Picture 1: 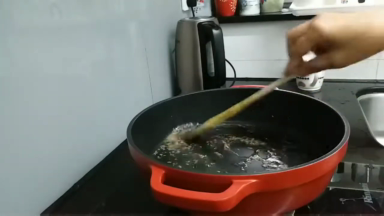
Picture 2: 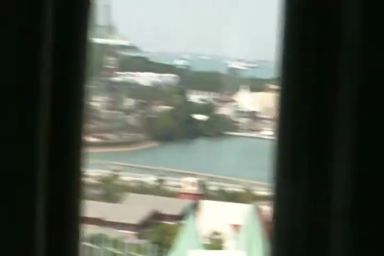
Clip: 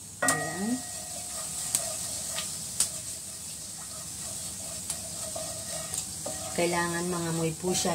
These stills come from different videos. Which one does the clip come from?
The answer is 1